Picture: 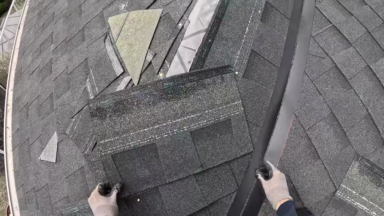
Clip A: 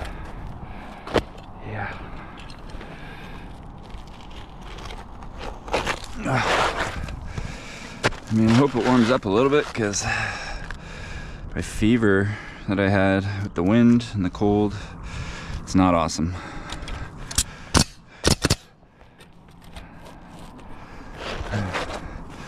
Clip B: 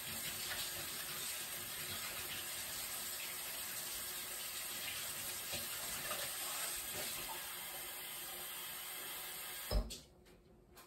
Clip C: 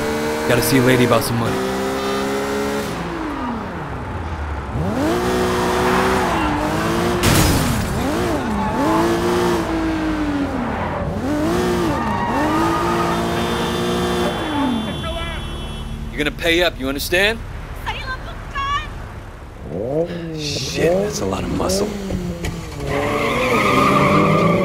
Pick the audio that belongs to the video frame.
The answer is A